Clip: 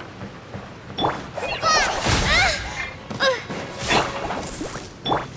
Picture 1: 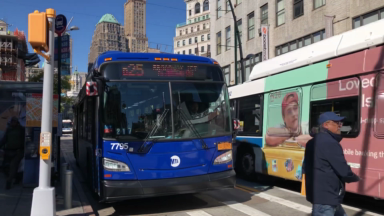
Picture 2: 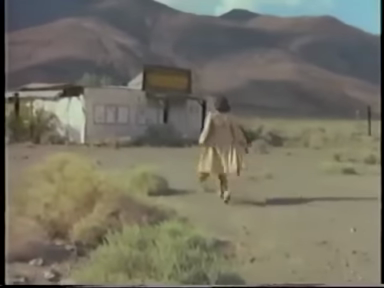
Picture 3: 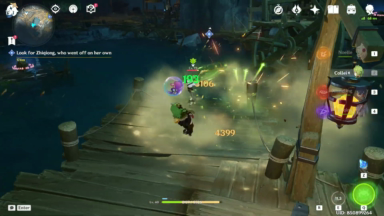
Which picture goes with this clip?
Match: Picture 3